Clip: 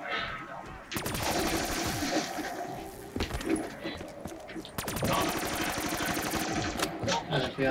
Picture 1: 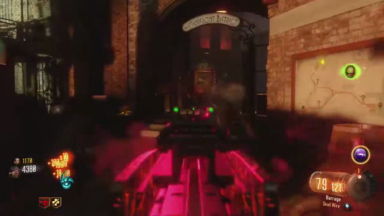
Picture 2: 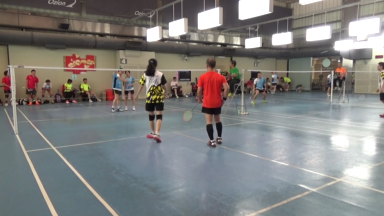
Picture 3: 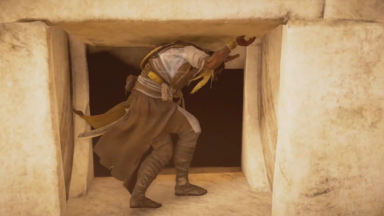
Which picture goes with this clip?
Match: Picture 1